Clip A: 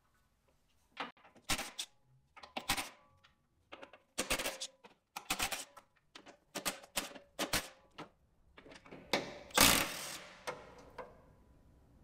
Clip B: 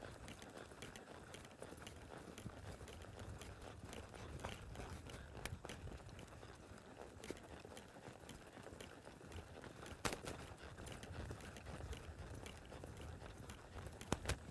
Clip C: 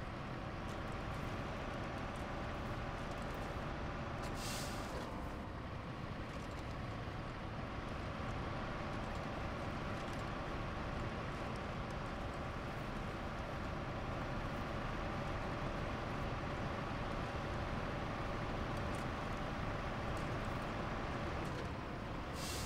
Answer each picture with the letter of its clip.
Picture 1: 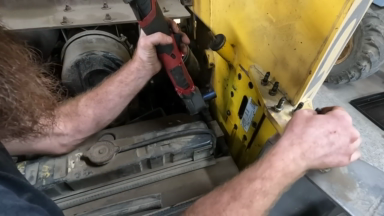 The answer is A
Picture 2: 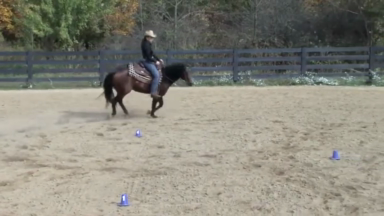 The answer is B